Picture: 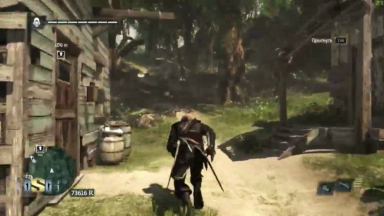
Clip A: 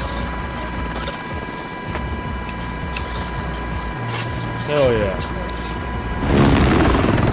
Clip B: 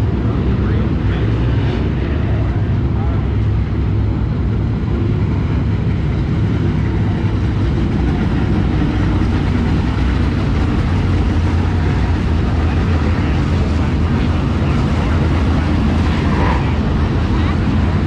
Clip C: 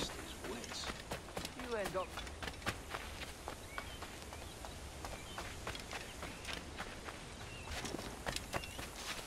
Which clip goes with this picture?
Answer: C